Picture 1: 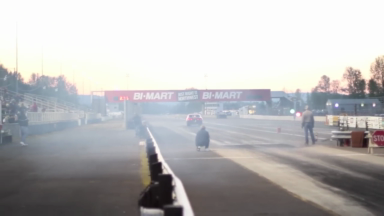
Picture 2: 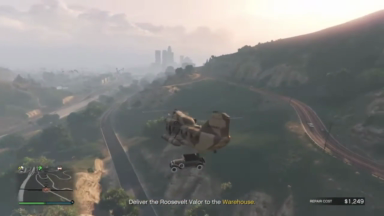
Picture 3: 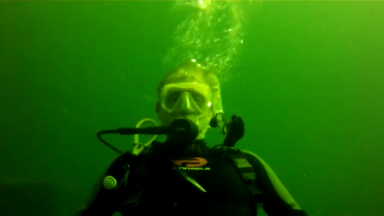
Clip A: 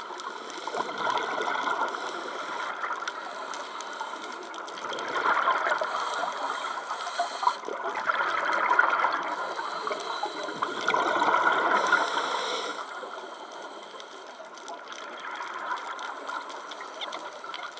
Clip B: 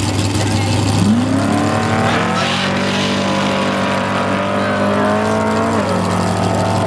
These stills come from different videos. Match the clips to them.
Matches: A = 3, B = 1